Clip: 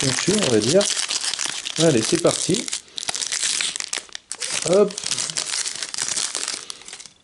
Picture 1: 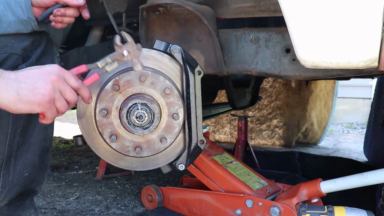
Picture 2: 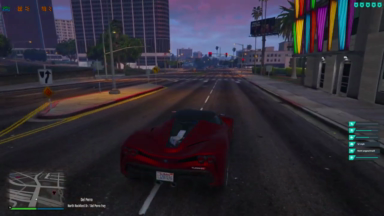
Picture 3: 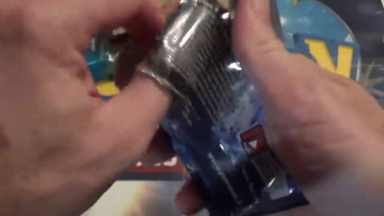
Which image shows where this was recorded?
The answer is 3